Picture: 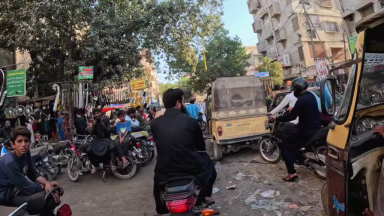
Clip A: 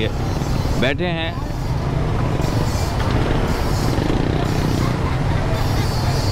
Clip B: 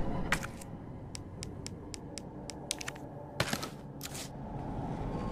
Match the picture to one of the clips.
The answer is A